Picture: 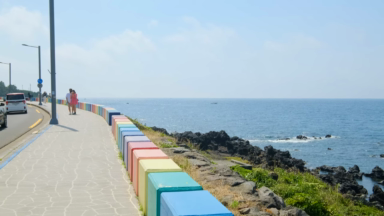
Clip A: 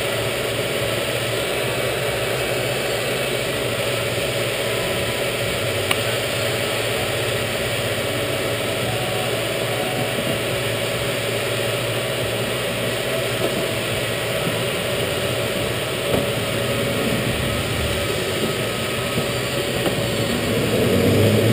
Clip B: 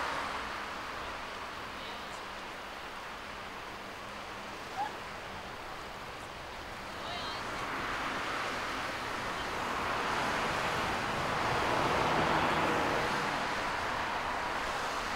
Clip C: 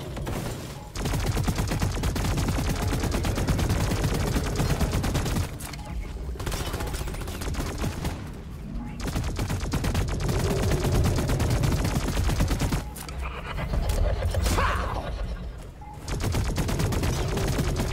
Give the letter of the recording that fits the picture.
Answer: B